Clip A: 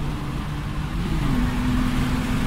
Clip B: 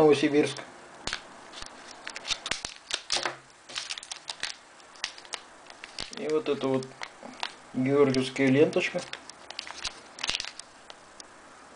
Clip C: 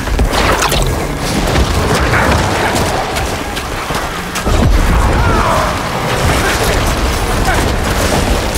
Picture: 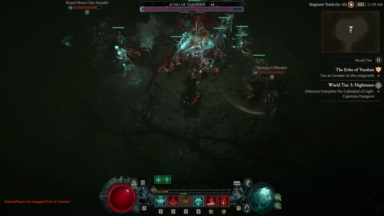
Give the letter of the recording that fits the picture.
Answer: C